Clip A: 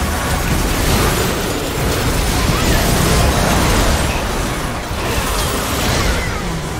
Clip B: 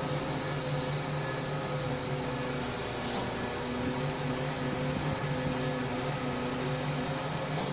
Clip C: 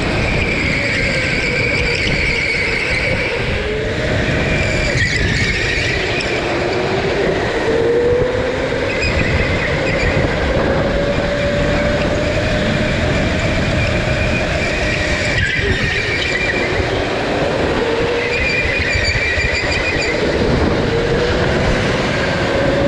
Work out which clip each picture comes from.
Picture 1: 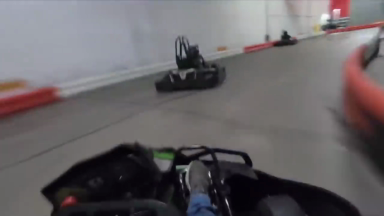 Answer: C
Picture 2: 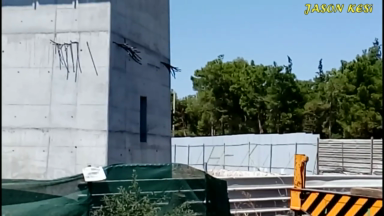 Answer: B